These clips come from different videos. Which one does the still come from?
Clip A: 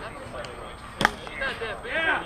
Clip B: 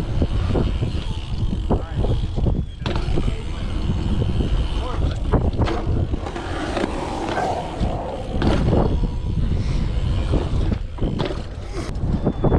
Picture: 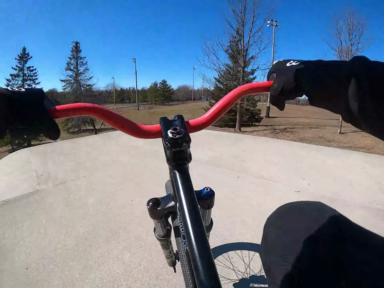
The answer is B